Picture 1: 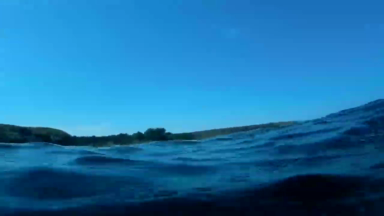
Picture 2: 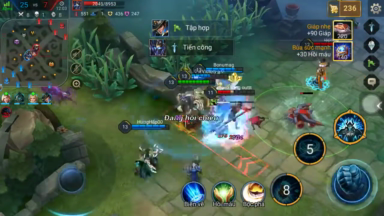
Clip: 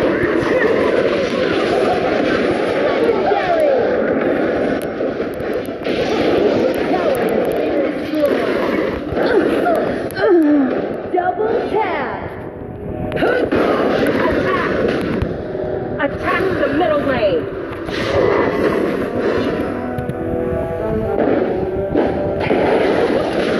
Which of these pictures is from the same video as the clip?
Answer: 2